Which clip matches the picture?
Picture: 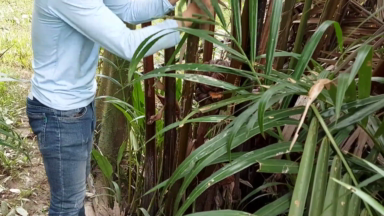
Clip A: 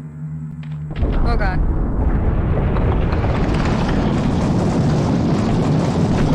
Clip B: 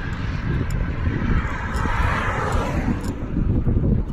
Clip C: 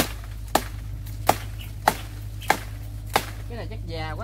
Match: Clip C